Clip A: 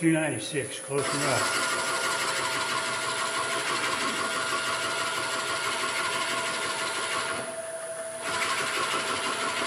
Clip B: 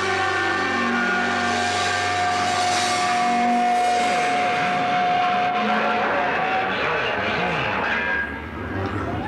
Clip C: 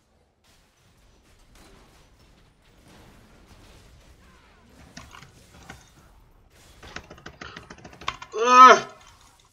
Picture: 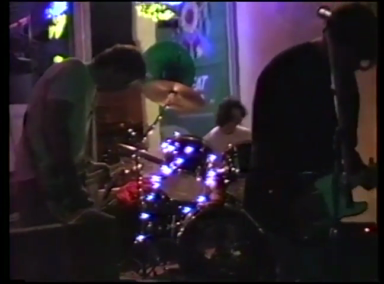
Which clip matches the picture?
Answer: B